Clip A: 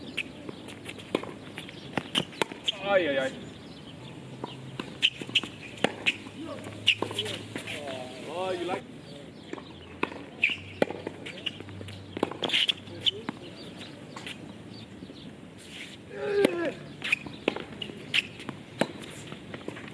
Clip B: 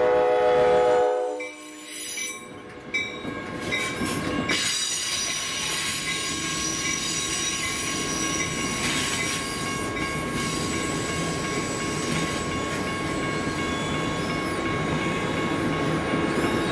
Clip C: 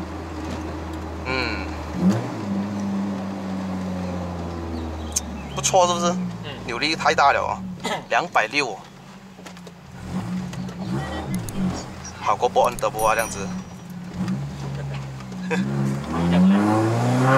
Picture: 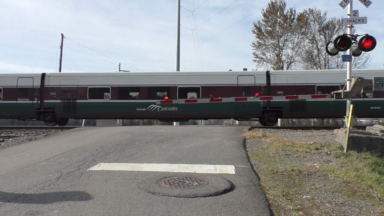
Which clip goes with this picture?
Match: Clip B